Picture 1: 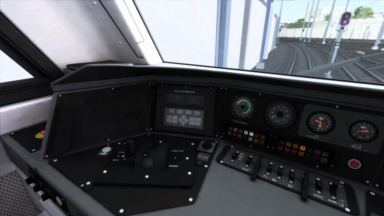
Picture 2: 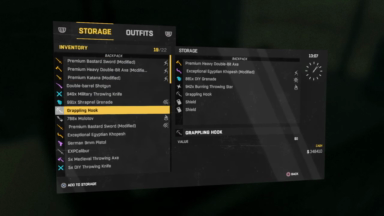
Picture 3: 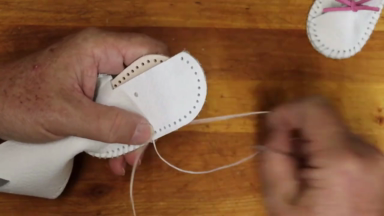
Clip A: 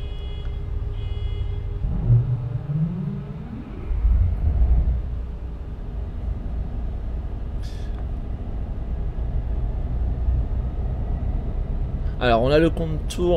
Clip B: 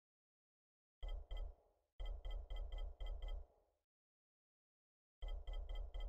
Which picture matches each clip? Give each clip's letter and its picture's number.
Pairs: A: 1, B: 2